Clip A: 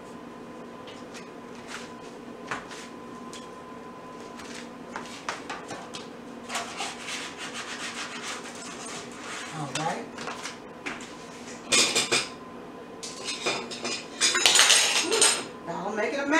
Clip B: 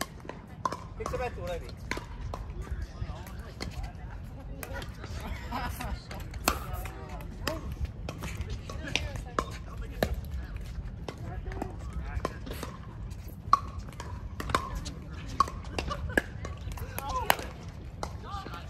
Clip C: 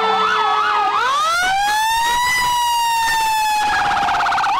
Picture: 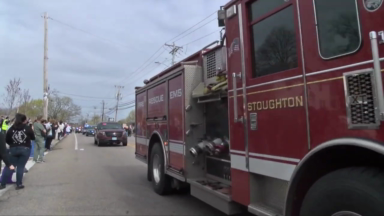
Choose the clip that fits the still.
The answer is C